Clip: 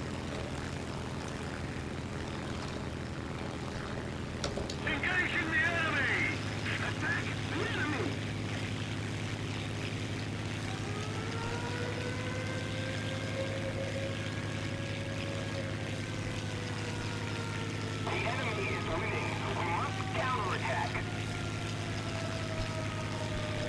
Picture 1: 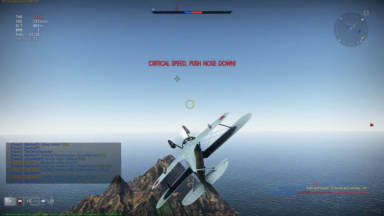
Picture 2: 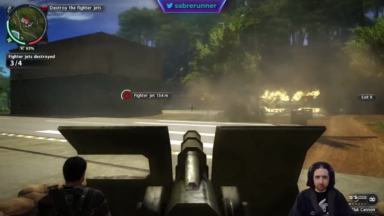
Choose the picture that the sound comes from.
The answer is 1